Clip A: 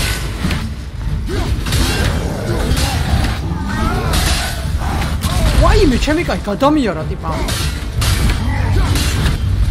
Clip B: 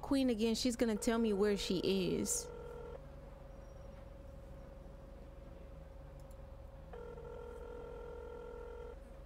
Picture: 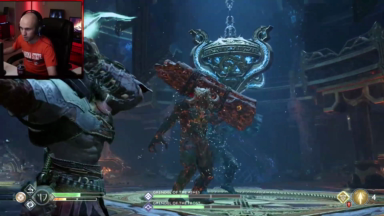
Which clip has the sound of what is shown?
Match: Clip A